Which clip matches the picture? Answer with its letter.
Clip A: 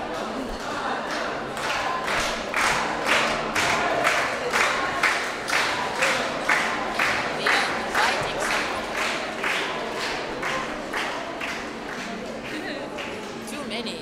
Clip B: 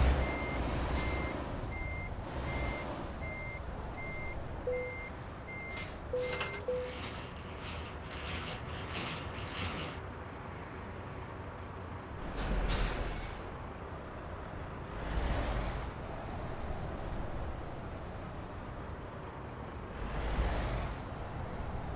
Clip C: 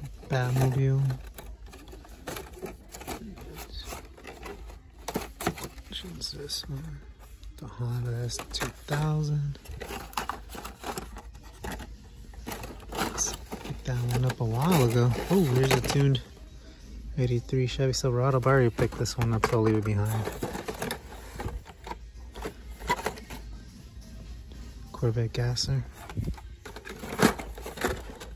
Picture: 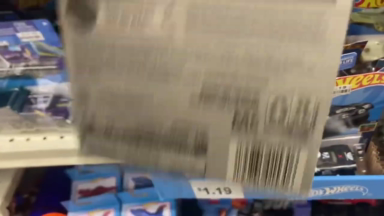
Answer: C